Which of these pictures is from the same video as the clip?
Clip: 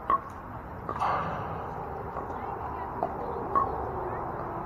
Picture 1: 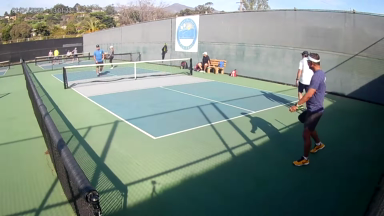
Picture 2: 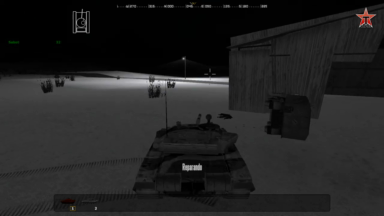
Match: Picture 1